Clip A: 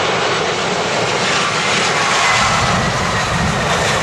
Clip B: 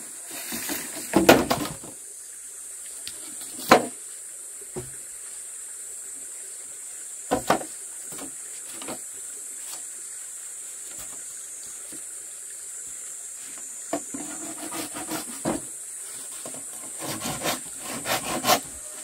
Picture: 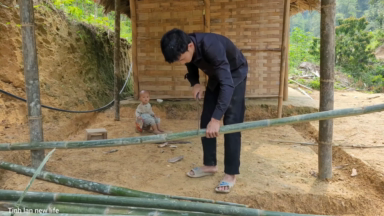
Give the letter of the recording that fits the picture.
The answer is B